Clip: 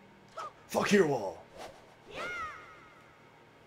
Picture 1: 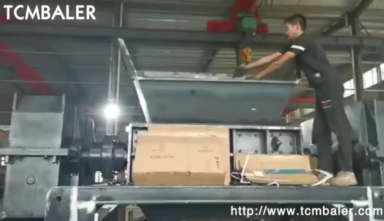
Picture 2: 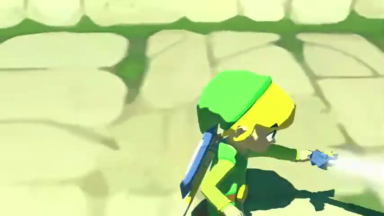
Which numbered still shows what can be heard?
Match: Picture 2